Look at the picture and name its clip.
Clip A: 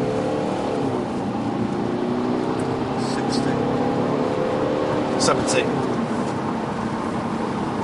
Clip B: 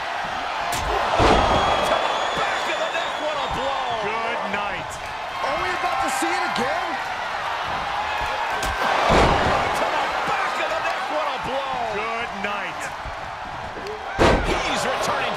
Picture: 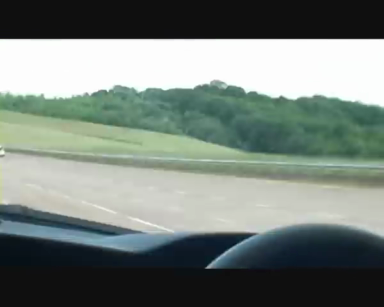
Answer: A